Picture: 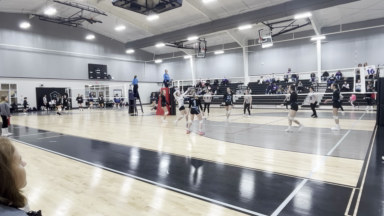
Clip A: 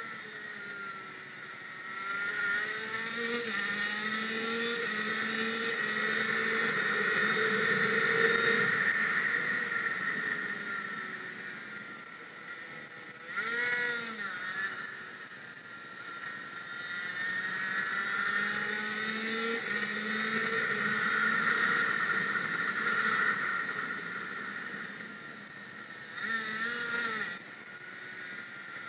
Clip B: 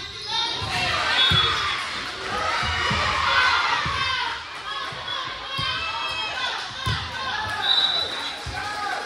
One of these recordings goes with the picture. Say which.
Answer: B